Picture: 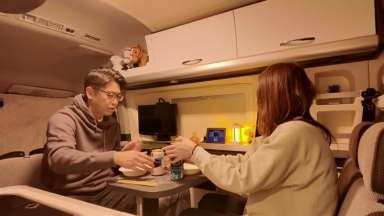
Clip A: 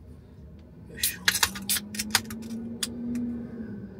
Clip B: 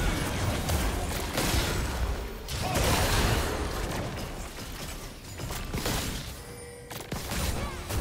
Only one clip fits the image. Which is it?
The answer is A